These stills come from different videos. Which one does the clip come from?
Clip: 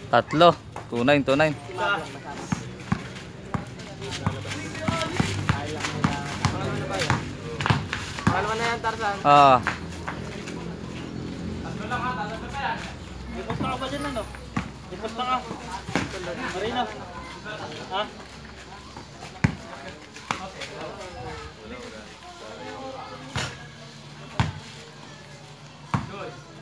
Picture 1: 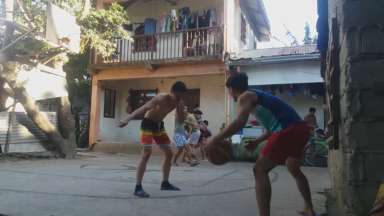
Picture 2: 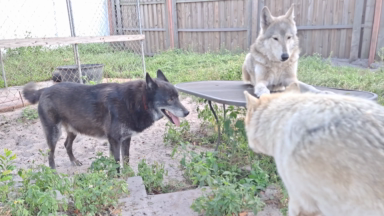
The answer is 1